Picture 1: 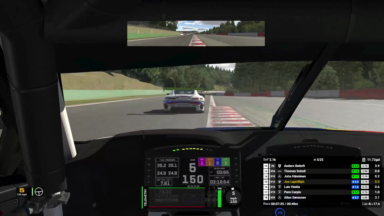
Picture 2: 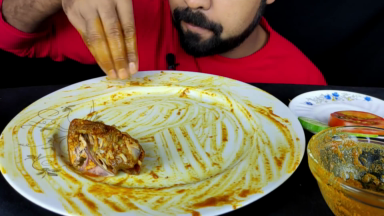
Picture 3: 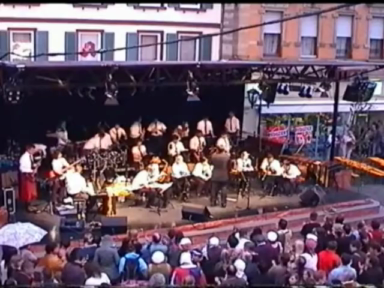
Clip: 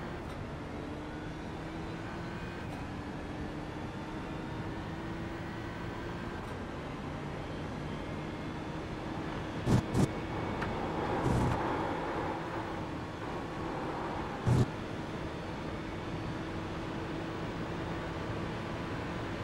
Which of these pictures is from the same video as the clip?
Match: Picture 1